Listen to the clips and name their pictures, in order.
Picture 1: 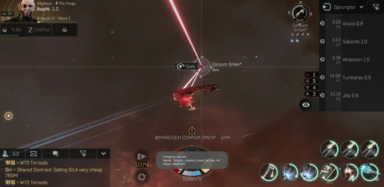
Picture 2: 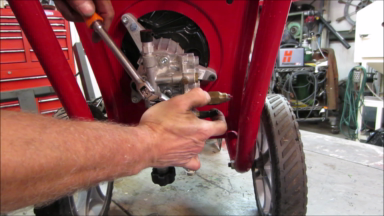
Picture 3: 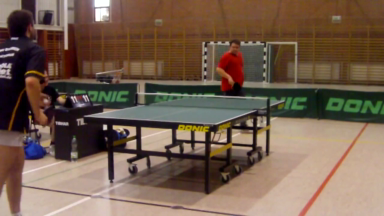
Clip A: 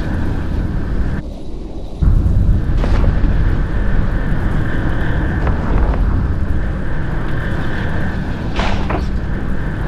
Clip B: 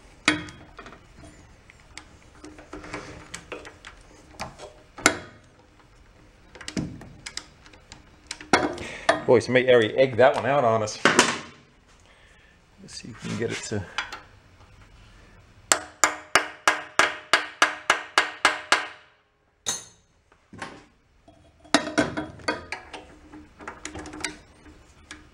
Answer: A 1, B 2